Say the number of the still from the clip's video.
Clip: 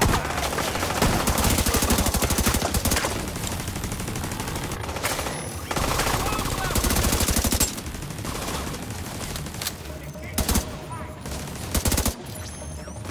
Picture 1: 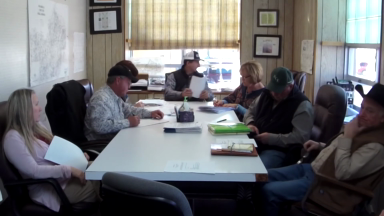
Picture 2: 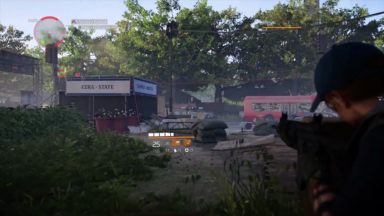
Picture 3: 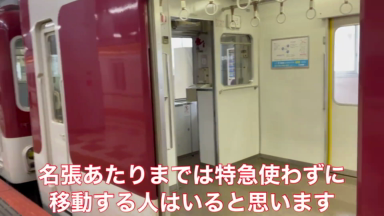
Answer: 2